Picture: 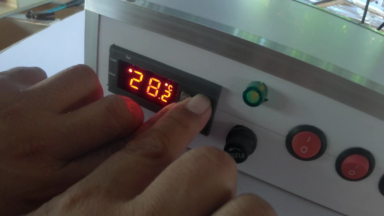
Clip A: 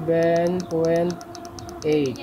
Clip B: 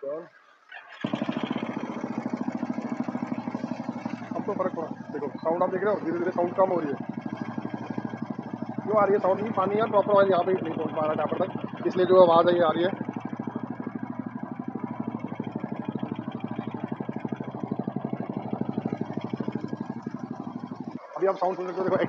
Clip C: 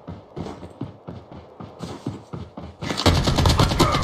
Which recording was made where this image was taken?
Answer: A